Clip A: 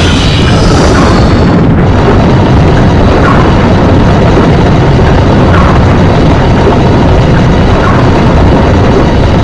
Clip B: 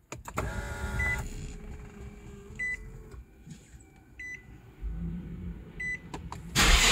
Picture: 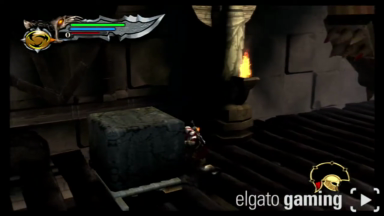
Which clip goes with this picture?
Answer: A